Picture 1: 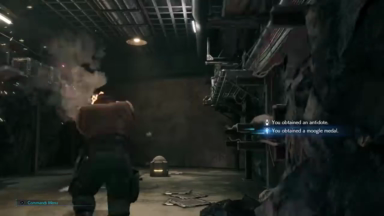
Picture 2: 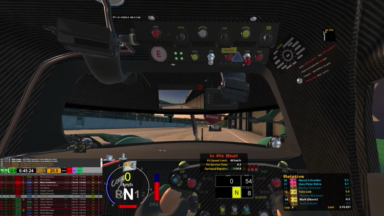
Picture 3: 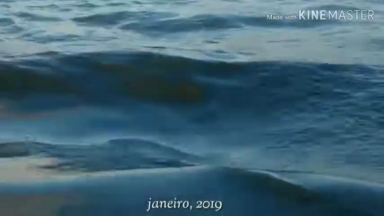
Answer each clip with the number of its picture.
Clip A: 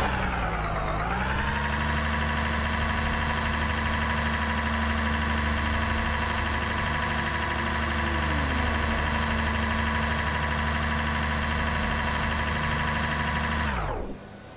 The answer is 2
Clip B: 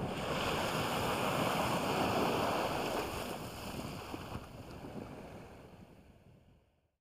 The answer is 3